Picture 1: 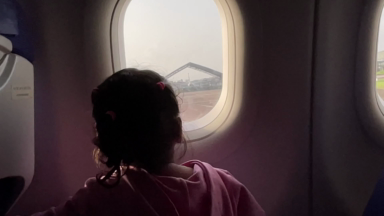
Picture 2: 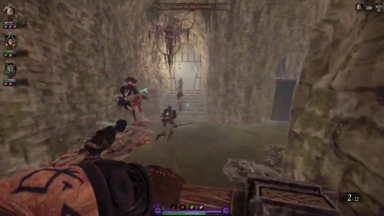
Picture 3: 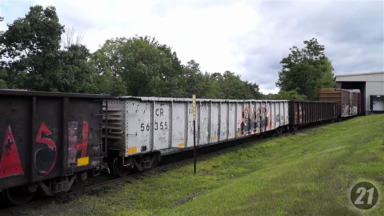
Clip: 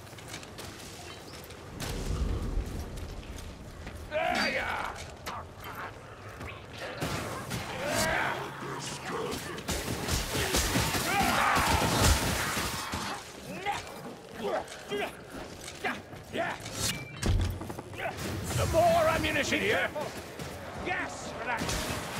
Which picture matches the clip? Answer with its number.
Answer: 2